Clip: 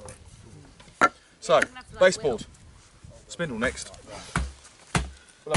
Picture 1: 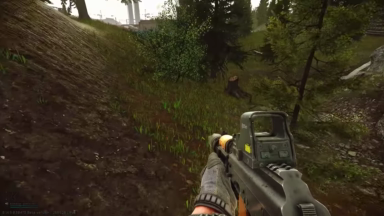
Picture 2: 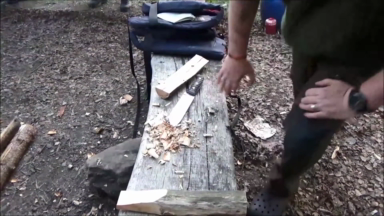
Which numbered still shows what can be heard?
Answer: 2